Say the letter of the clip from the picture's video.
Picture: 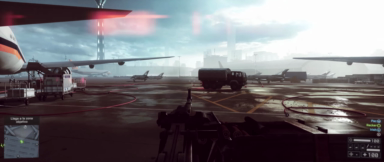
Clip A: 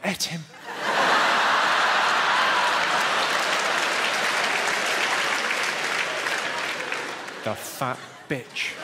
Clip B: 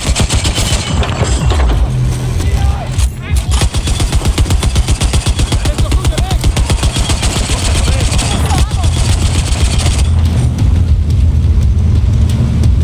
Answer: B